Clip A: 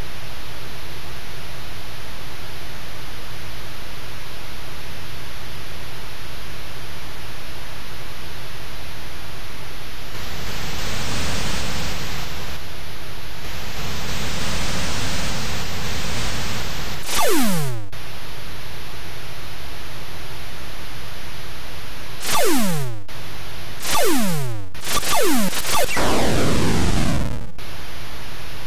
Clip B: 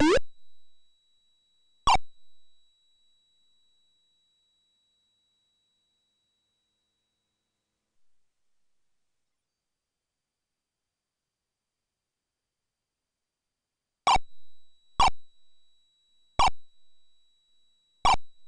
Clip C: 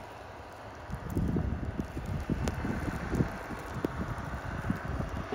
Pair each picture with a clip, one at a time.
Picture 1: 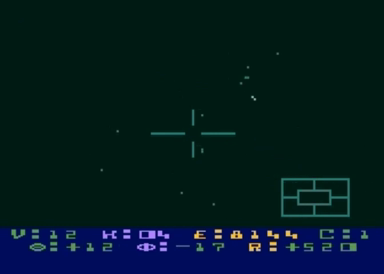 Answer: A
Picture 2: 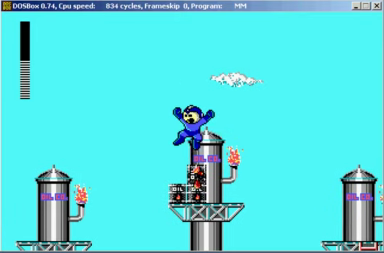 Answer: B